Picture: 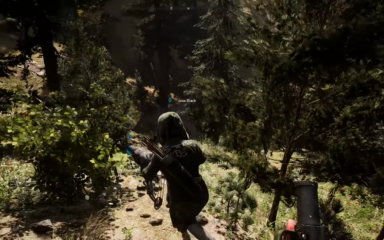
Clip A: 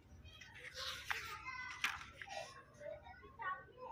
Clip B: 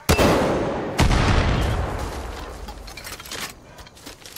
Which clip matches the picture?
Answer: B